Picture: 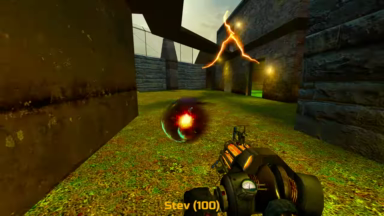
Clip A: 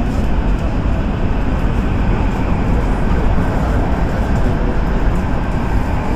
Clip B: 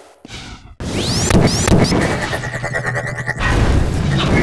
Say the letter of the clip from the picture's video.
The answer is B